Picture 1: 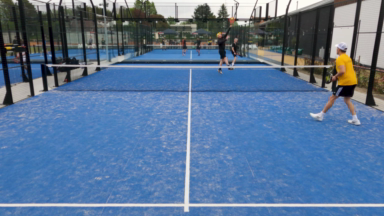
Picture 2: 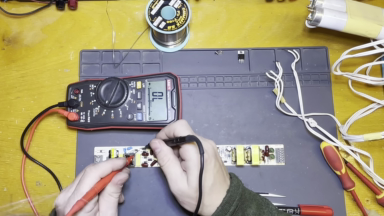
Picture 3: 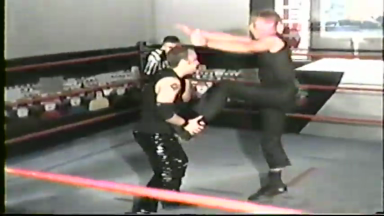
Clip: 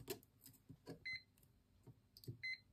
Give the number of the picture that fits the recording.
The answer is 2